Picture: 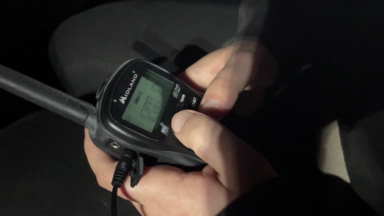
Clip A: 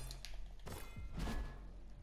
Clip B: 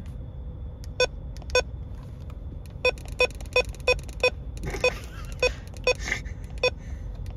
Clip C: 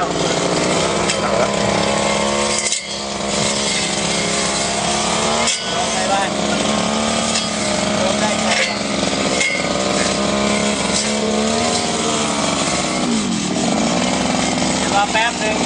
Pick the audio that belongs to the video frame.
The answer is B